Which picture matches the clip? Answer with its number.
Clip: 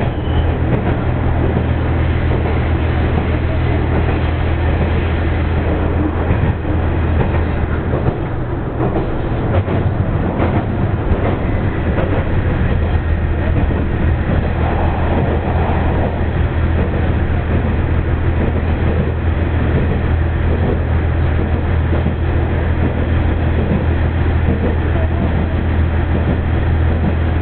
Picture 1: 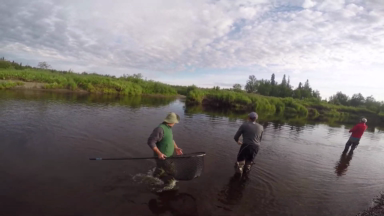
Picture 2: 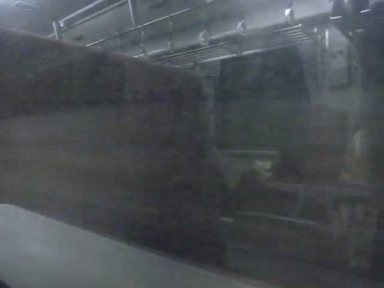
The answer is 2